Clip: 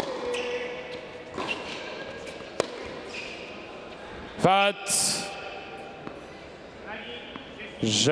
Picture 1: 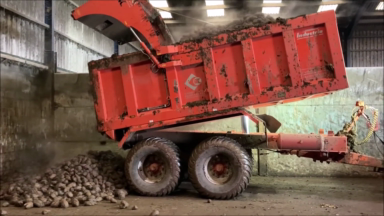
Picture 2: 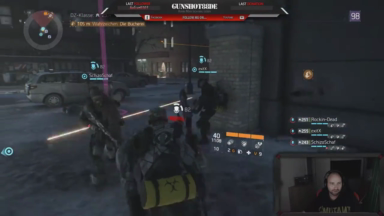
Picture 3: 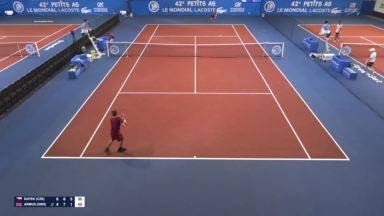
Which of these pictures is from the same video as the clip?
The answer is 3